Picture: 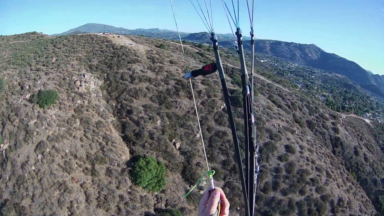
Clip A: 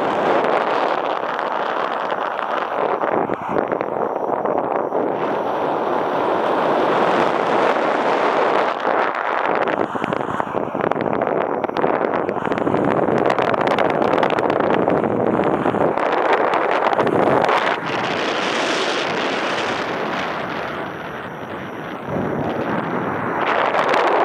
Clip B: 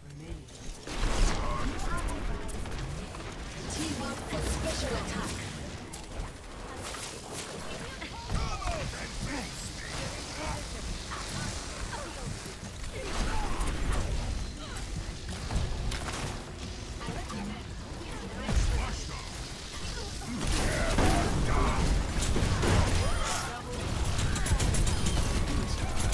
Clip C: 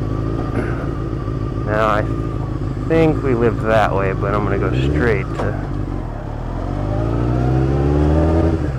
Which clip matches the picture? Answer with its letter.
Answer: A